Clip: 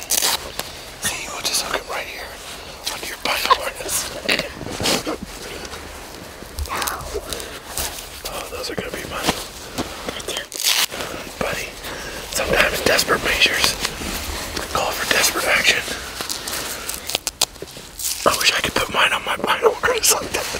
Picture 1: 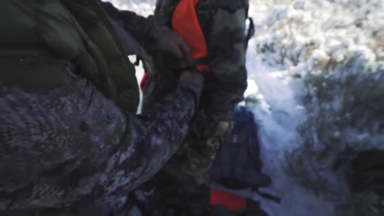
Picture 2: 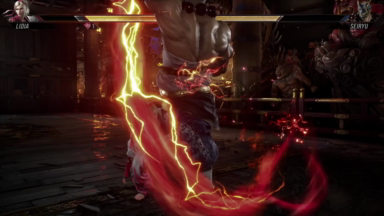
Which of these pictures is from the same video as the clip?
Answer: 1